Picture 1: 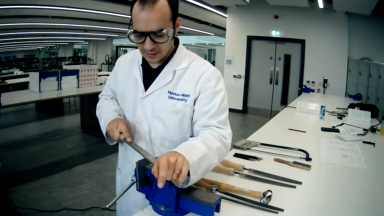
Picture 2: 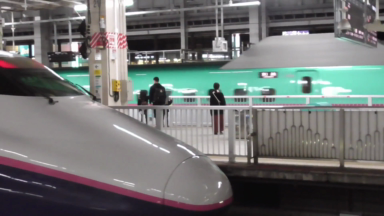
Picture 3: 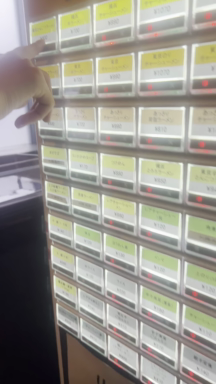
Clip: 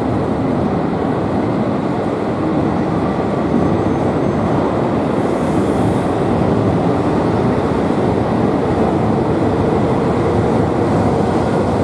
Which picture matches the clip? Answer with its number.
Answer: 2